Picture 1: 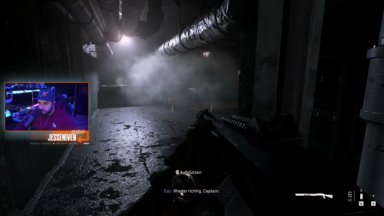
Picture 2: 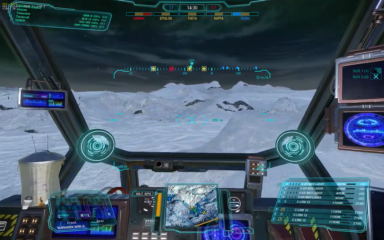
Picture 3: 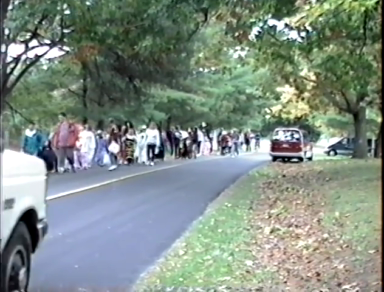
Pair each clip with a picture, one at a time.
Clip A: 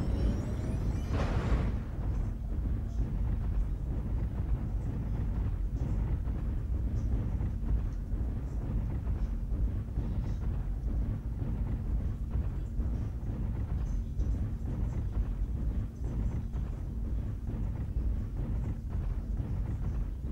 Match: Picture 2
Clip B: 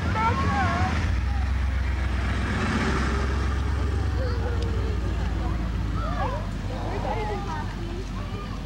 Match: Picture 3